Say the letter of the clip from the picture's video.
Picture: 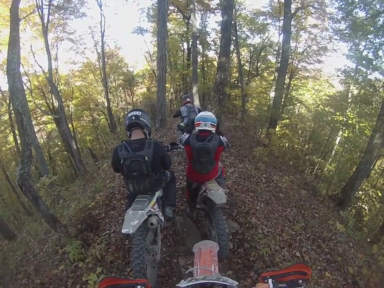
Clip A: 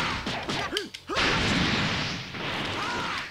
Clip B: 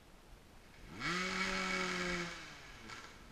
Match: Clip B